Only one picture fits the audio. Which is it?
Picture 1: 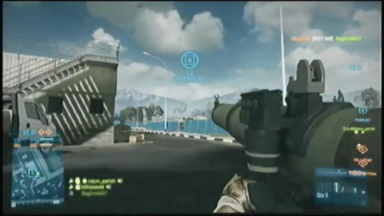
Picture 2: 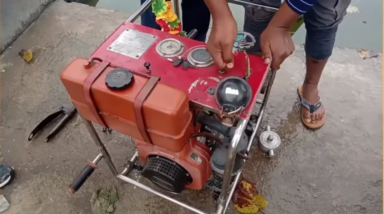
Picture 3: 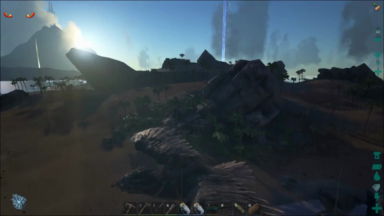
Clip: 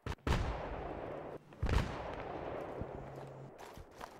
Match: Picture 1